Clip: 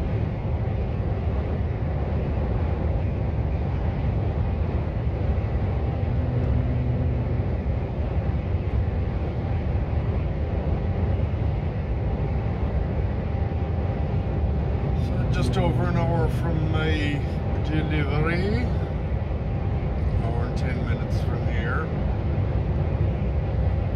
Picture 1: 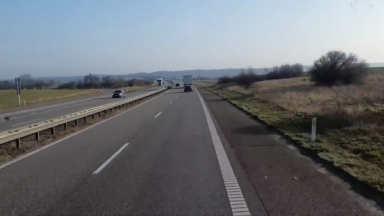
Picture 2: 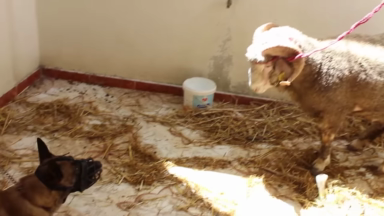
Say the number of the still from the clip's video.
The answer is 1